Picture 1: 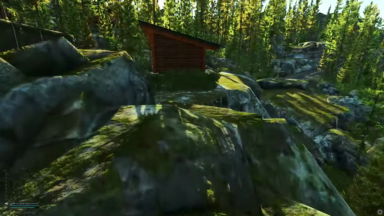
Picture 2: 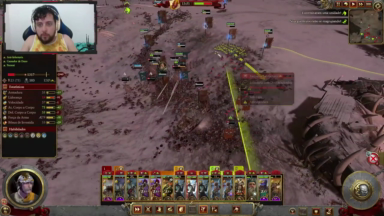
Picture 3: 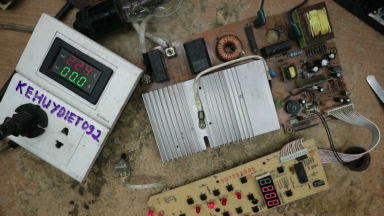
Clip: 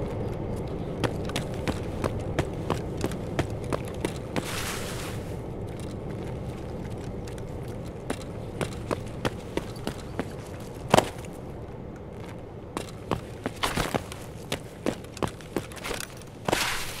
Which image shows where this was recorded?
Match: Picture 1